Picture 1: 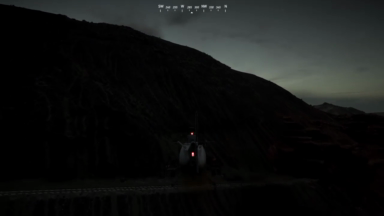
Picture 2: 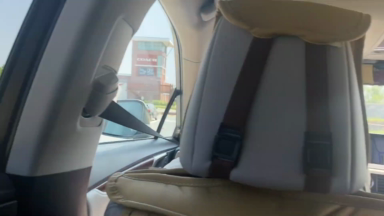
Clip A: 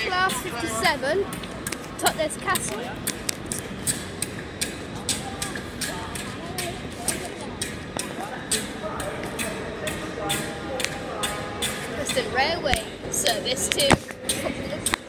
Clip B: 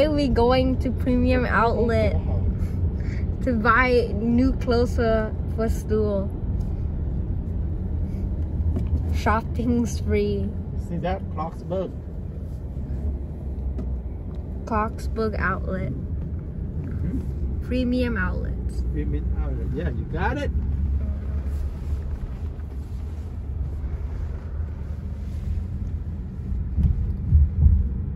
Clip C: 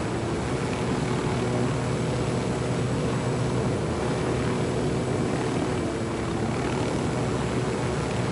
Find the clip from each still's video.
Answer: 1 C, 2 B